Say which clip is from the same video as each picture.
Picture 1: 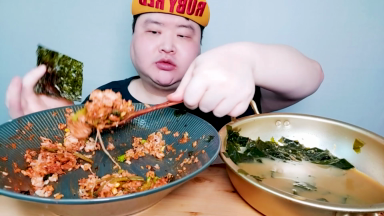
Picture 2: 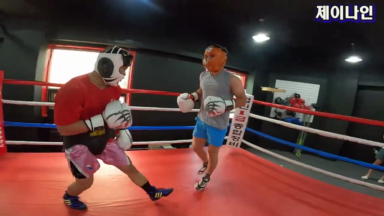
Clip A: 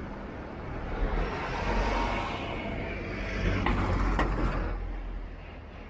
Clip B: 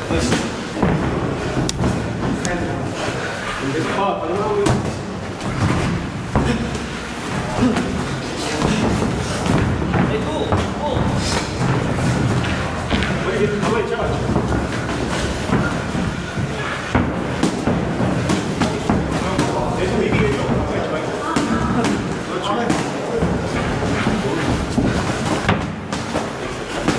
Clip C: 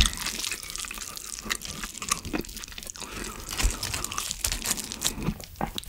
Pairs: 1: C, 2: B